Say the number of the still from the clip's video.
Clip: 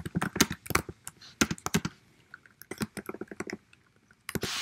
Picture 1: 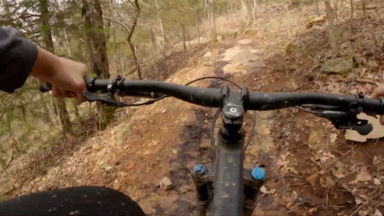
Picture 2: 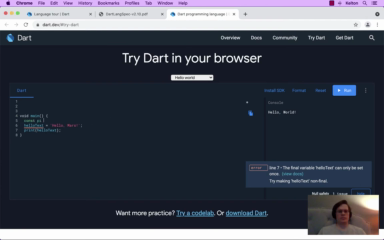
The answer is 2